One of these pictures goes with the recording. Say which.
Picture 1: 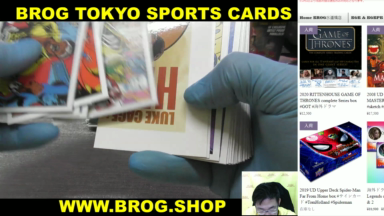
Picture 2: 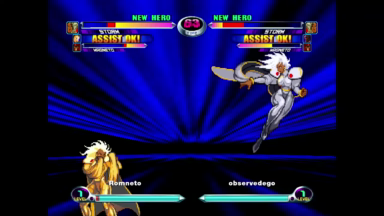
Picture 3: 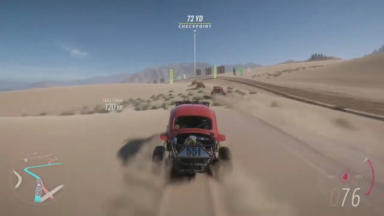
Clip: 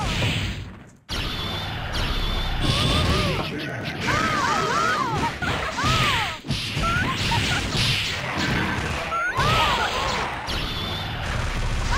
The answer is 2